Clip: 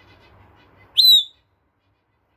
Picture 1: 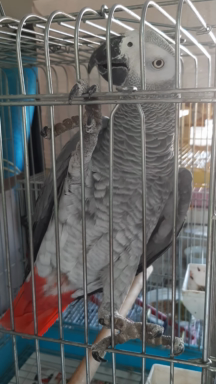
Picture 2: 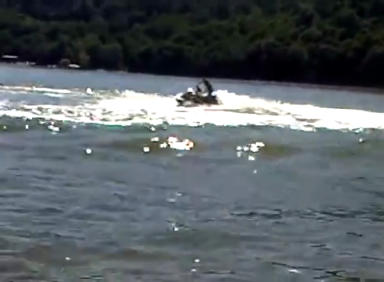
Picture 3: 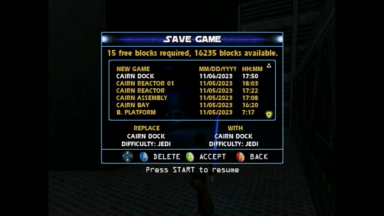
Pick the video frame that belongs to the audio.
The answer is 1